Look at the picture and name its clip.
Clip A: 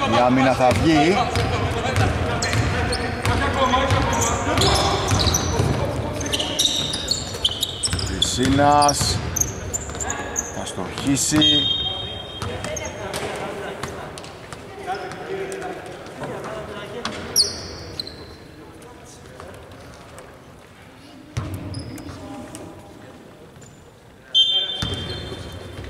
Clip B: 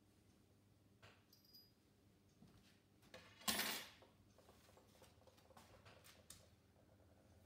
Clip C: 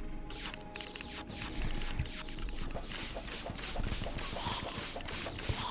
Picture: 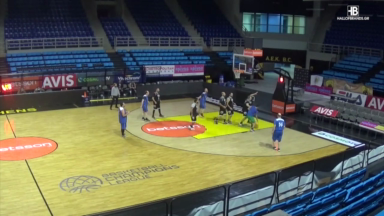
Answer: A